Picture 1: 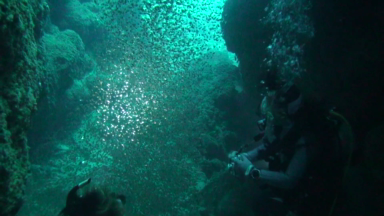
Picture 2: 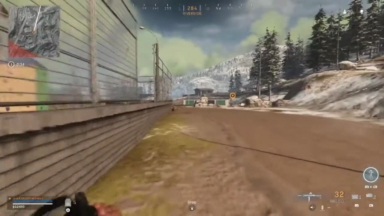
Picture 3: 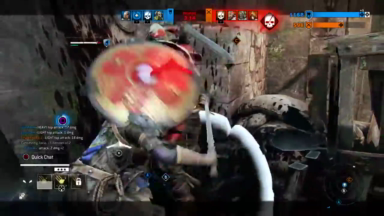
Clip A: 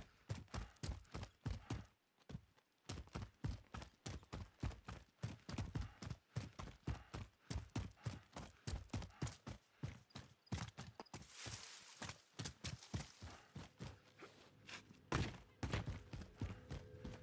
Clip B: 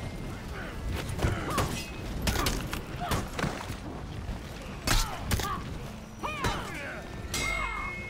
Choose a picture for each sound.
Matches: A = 2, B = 3